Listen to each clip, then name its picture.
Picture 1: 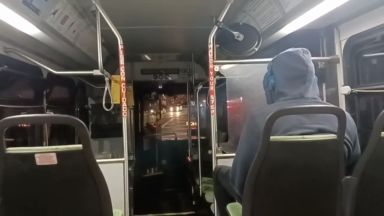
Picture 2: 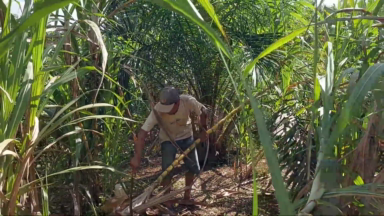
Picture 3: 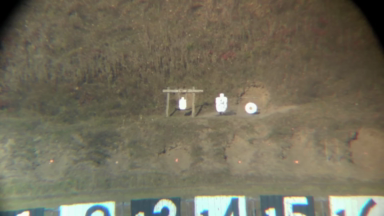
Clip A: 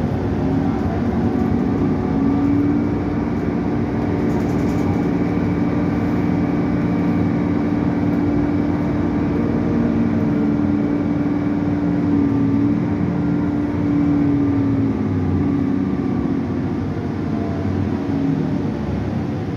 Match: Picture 1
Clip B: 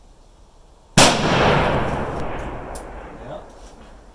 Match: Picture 3